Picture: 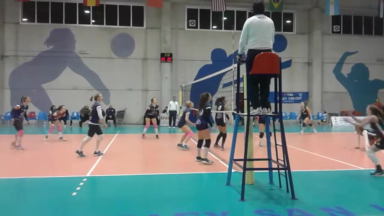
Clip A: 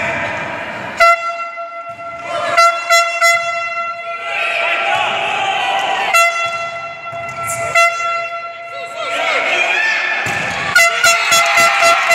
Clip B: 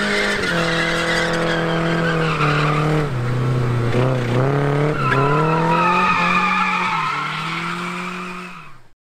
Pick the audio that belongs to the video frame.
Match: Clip A